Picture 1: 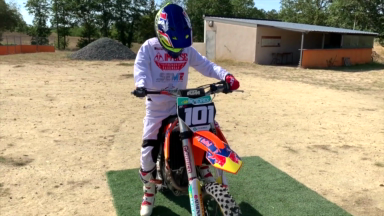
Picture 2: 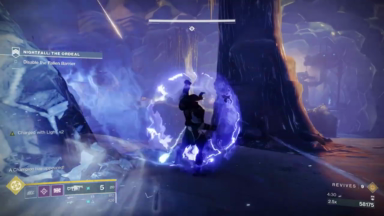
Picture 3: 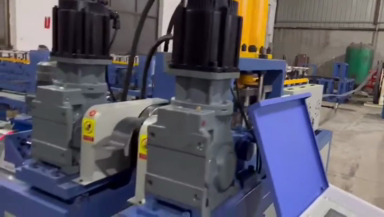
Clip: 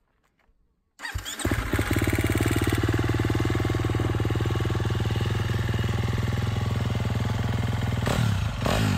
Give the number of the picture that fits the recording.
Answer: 1